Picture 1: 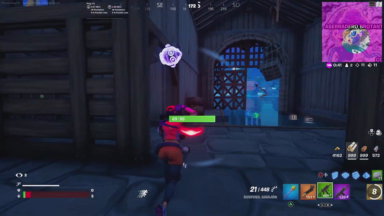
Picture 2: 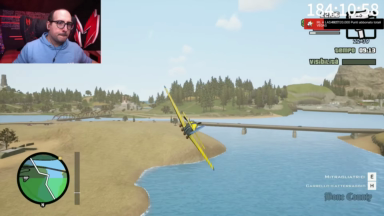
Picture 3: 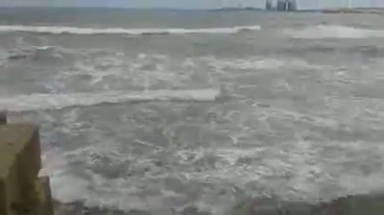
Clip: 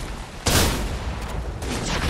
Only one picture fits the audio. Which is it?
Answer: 1